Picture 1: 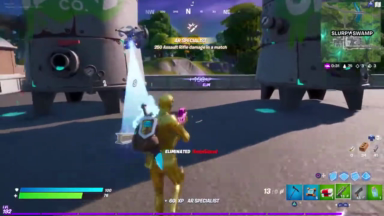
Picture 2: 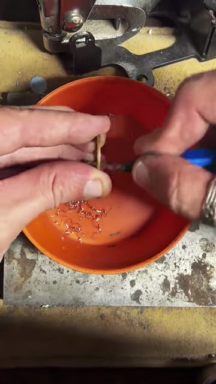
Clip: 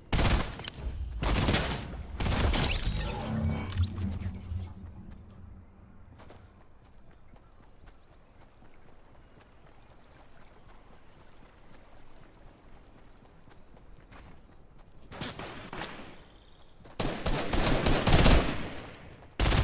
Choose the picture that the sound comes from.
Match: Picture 1